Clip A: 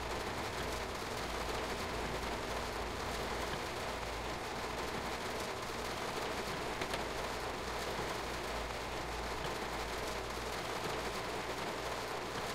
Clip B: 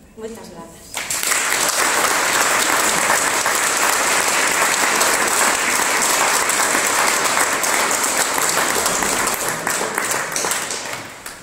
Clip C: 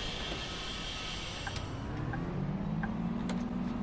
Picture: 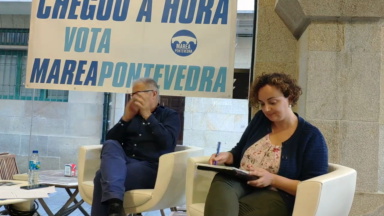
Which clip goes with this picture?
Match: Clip B